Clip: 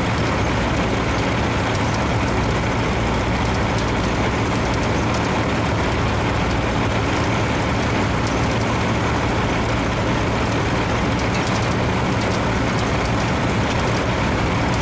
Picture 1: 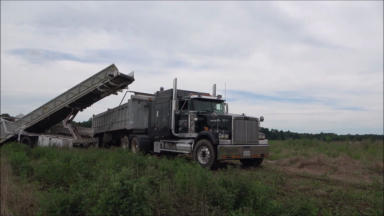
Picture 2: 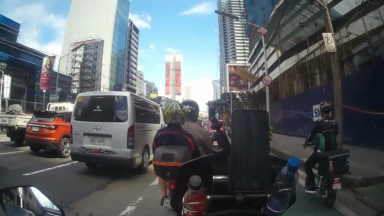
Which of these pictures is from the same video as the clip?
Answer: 1